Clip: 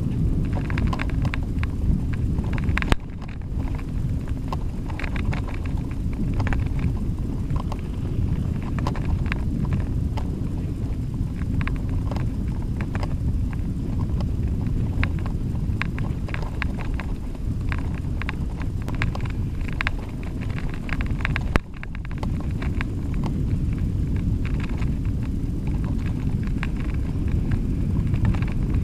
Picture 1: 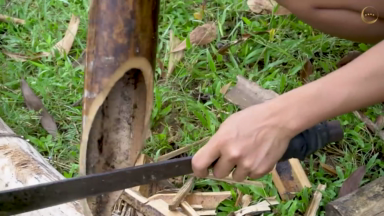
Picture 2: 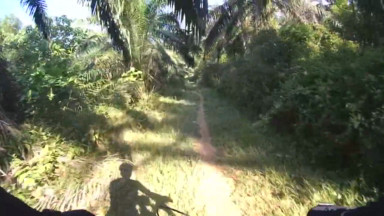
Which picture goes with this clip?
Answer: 2